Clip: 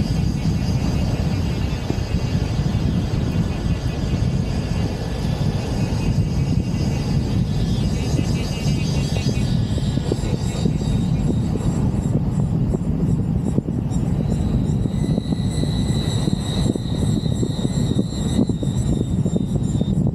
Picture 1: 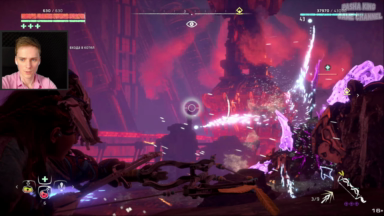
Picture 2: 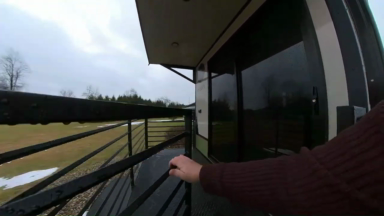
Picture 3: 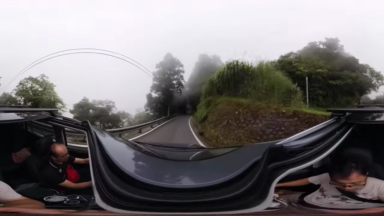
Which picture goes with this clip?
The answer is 3